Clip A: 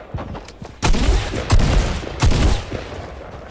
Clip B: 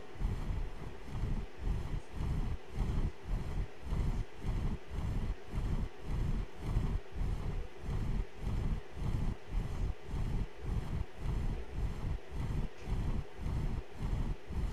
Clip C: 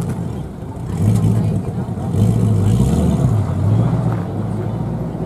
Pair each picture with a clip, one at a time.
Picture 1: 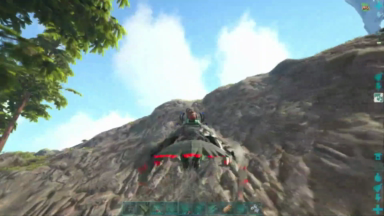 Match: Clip B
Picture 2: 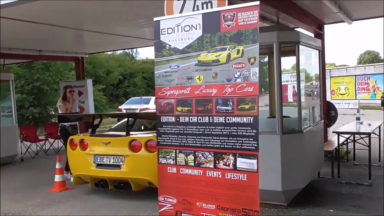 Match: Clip C